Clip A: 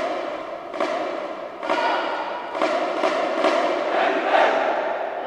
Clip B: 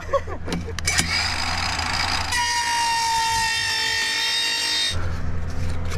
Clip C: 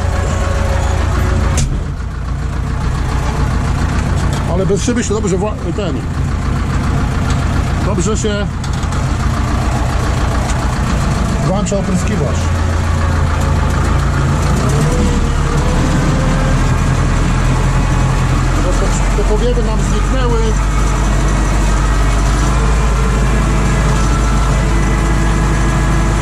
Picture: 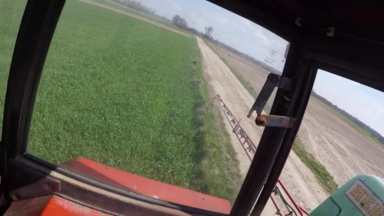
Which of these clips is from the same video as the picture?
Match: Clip C